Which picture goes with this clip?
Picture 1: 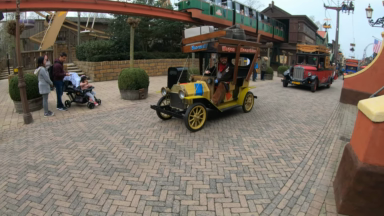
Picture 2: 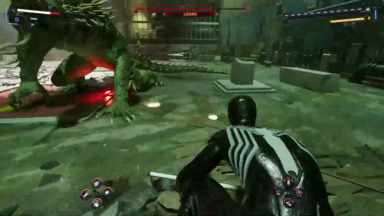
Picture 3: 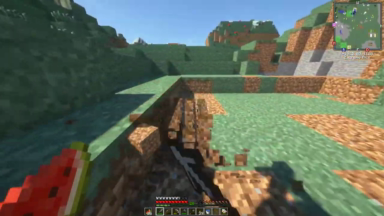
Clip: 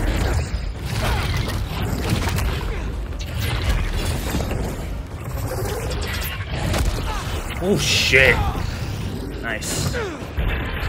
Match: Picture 2